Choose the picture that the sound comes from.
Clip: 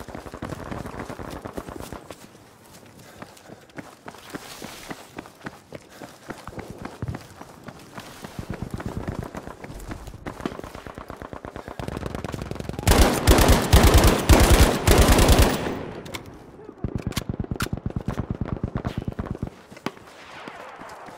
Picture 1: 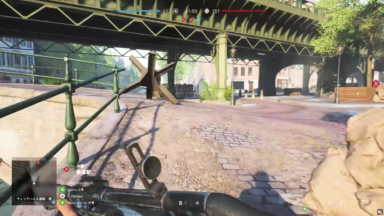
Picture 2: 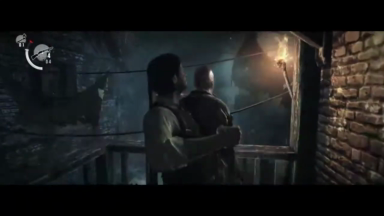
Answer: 1